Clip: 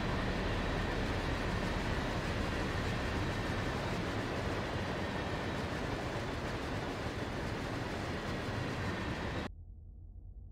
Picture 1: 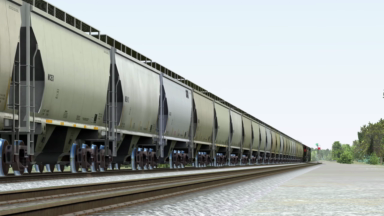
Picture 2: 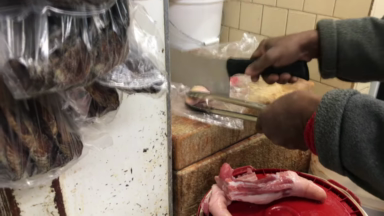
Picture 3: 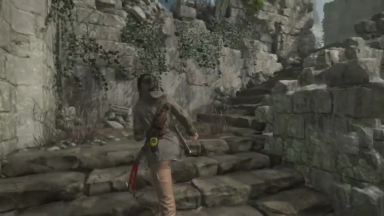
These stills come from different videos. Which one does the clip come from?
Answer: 1